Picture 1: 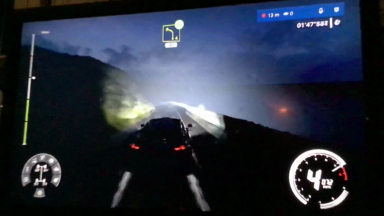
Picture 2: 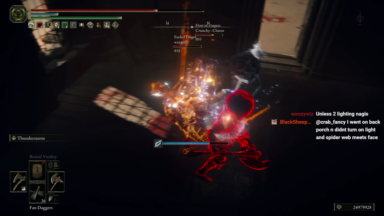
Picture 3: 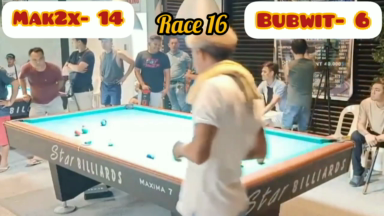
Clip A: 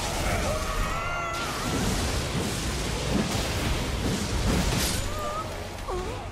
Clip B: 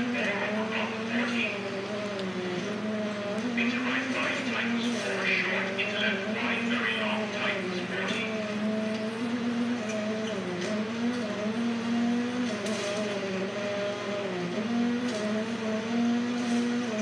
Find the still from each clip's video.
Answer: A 2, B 1